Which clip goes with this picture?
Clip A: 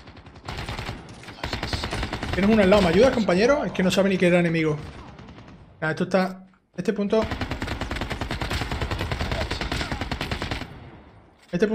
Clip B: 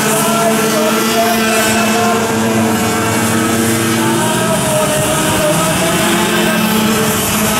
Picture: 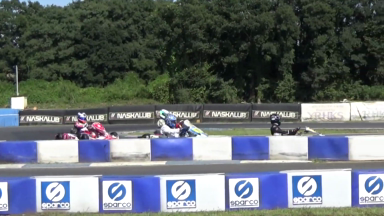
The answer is B